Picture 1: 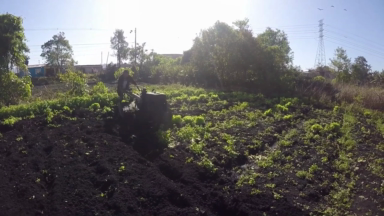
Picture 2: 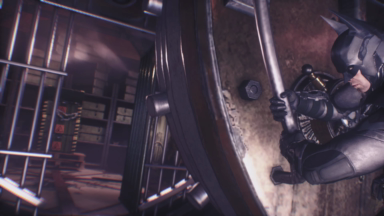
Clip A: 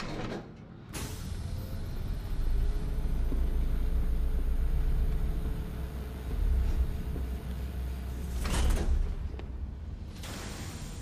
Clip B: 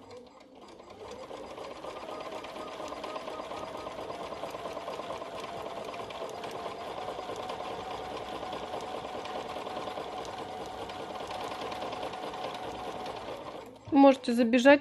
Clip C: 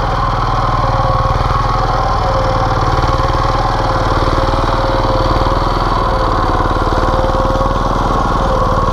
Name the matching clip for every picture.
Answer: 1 C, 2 A